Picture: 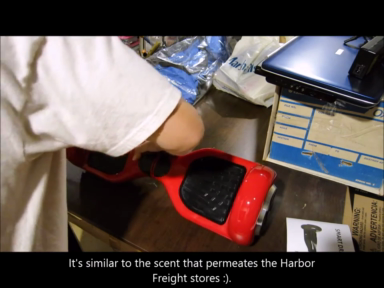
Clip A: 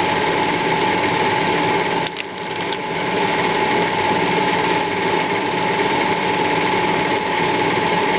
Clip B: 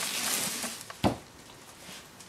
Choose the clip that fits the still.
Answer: B